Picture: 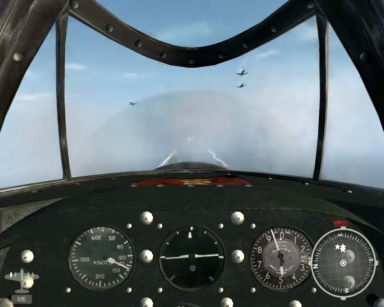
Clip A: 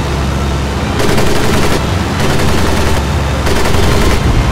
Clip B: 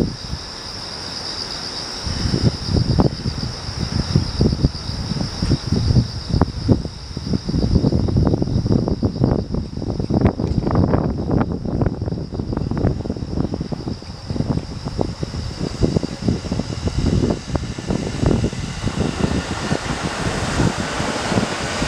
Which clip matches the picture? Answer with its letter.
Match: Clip A